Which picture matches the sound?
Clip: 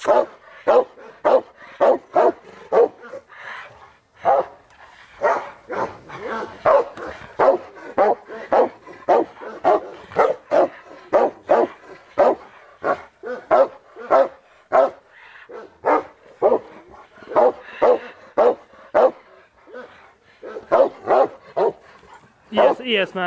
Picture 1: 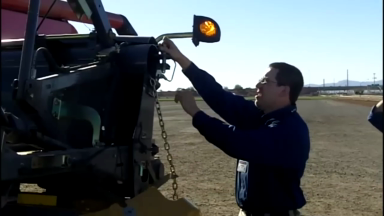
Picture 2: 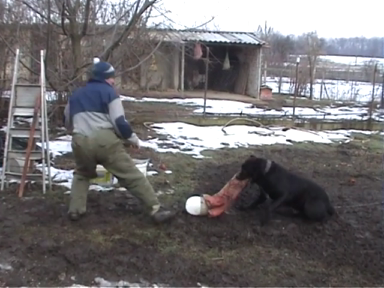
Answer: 2